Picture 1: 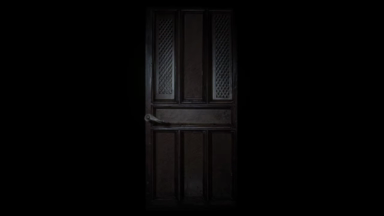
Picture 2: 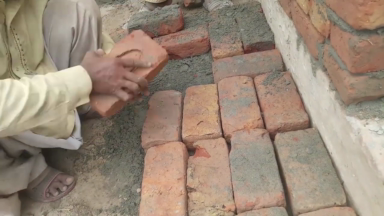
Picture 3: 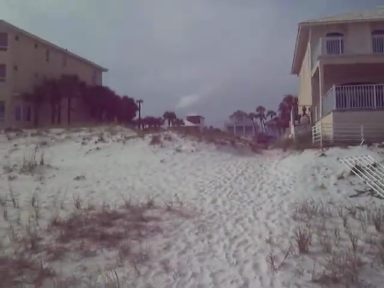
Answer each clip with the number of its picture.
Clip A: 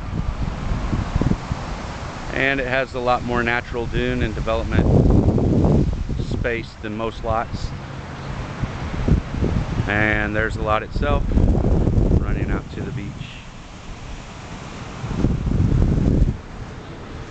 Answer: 3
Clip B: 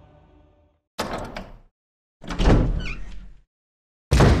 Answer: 1